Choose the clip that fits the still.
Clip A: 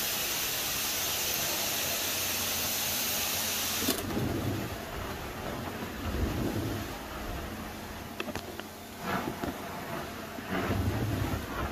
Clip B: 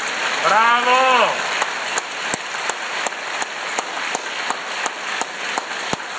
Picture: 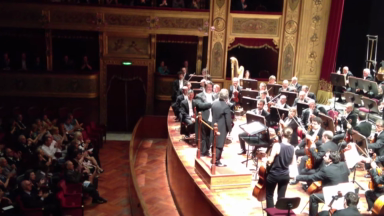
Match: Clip B